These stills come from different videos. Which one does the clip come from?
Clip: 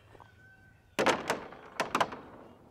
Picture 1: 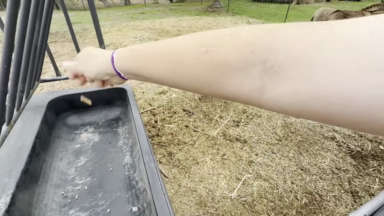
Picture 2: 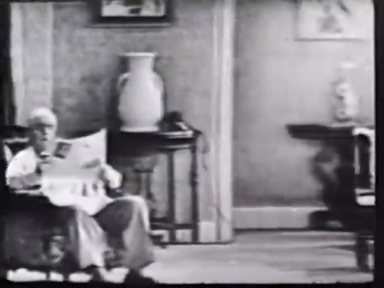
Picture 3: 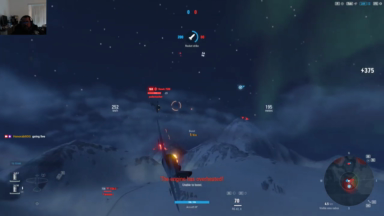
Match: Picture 1